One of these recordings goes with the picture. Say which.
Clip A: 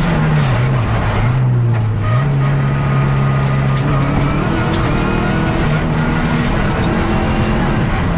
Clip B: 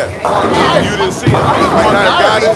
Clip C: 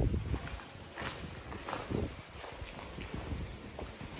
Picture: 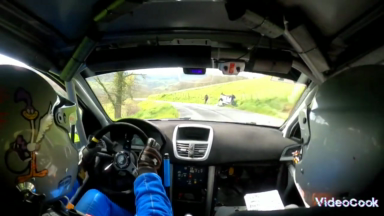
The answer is A